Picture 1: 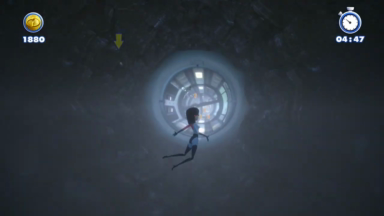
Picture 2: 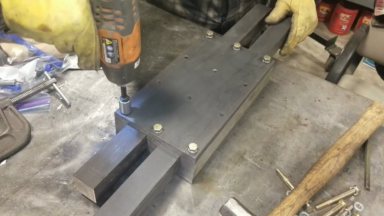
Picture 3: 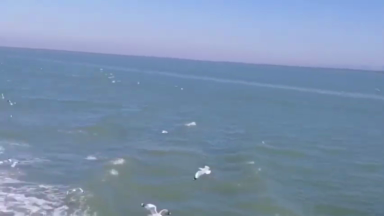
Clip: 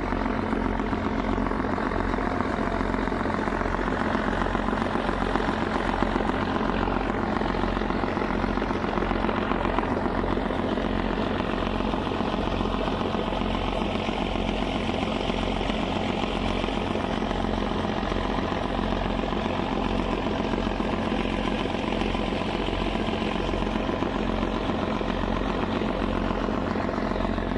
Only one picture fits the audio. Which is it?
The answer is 3